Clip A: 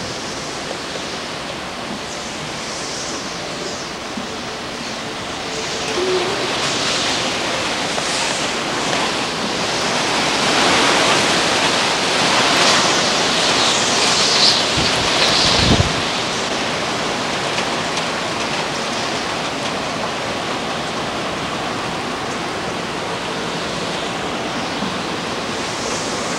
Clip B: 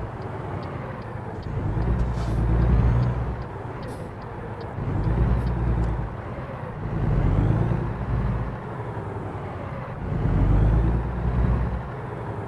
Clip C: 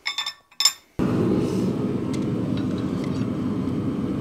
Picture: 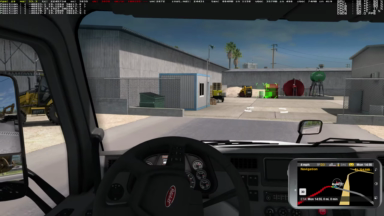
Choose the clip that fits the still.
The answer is B